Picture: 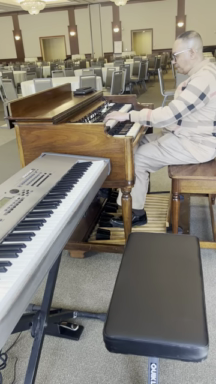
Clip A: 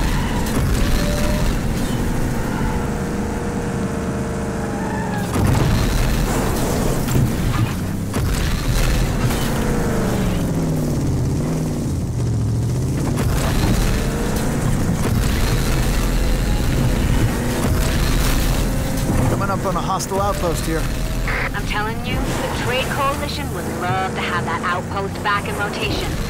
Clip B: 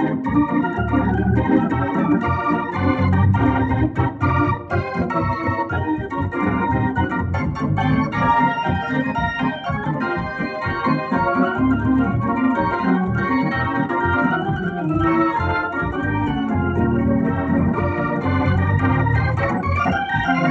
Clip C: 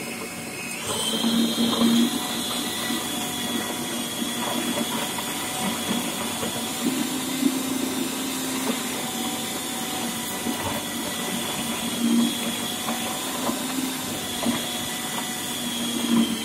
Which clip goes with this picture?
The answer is B